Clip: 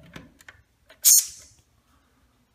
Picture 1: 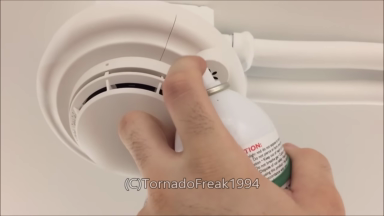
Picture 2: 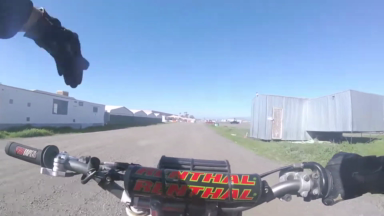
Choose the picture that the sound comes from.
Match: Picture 1